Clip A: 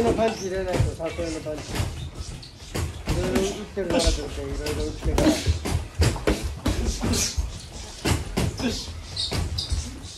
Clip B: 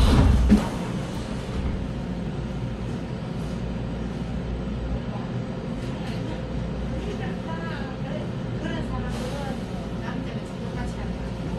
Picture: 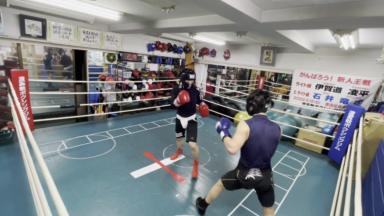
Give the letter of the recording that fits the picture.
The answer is A